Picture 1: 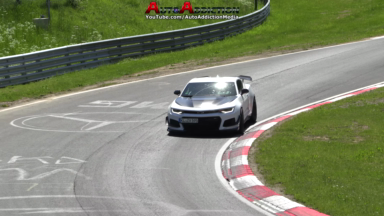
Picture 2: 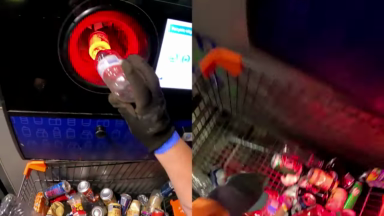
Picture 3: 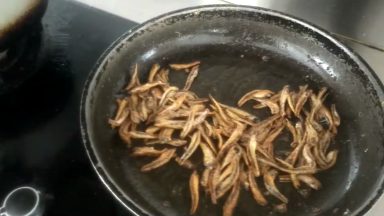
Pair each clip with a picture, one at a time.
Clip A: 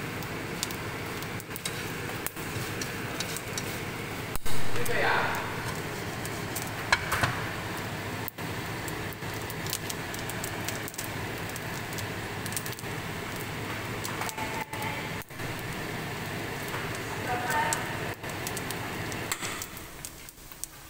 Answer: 3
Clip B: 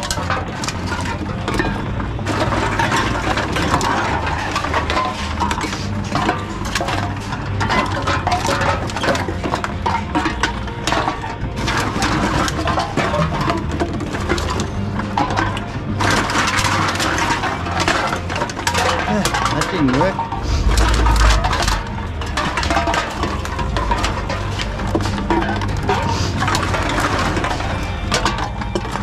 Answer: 2